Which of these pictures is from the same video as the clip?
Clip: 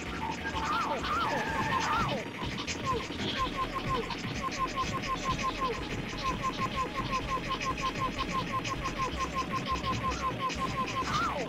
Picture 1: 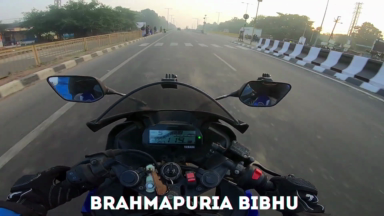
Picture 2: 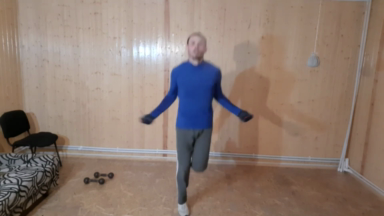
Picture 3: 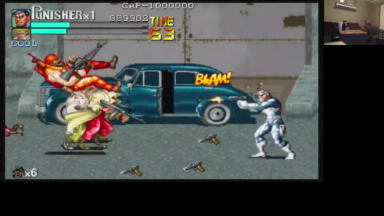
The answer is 3